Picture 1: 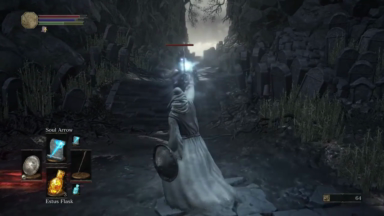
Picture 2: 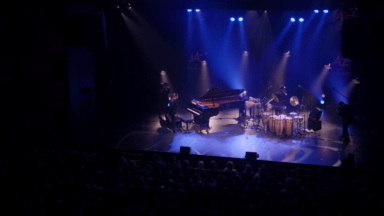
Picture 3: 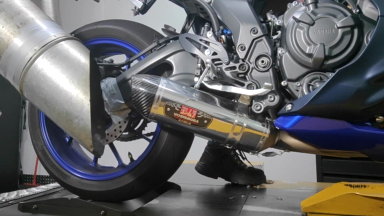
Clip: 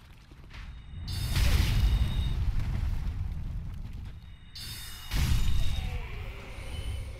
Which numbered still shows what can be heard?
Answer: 1